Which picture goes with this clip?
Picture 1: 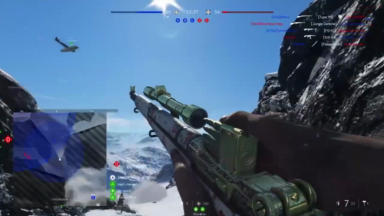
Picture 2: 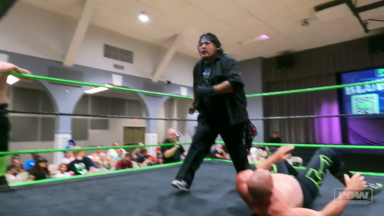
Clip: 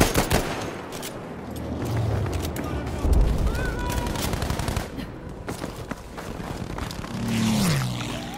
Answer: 1